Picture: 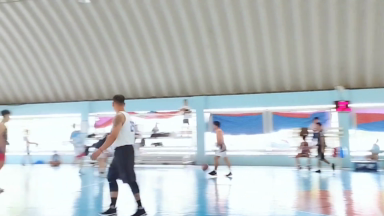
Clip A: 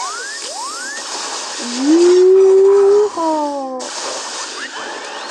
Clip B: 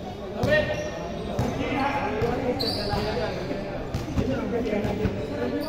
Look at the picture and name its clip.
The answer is B